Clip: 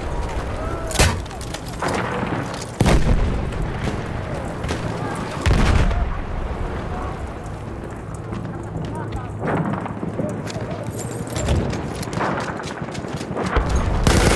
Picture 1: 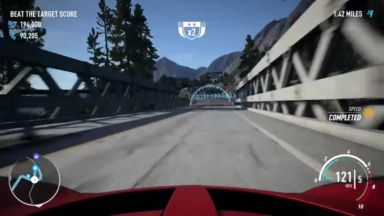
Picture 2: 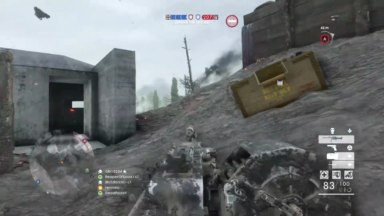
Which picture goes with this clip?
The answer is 2